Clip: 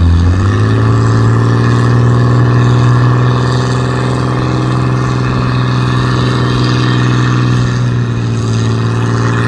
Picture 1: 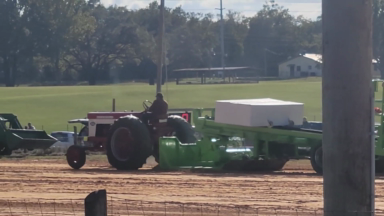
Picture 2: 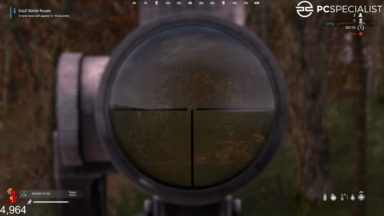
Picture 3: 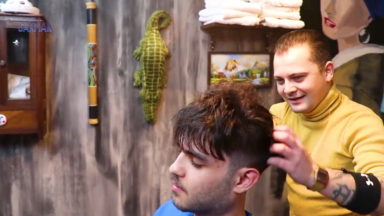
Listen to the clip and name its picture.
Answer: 1